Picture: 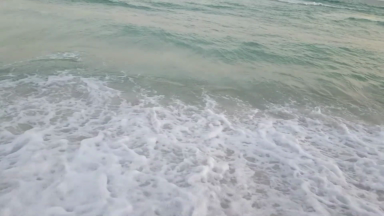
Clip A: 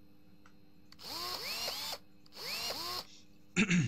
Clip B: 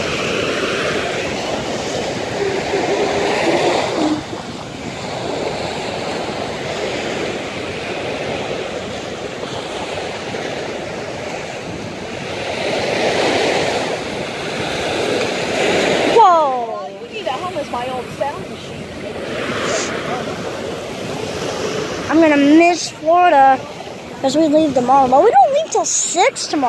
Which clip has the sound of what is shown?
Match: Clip B